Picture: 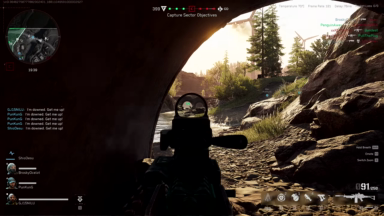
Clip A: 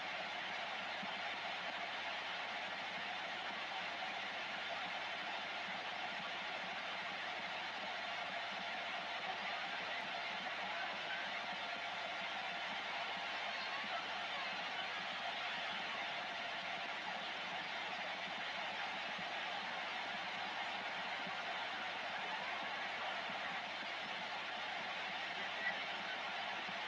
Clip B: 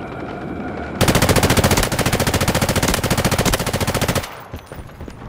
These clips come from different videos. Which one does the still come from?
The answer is B